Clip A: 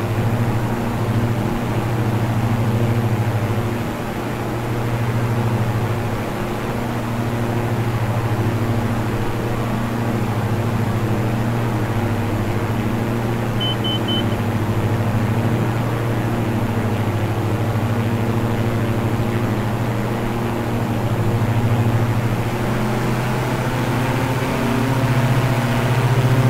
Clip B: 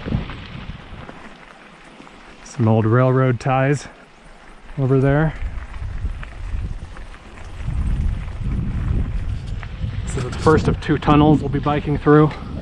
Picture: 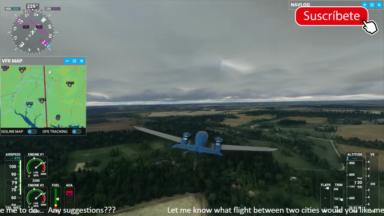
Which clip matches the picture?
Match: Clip A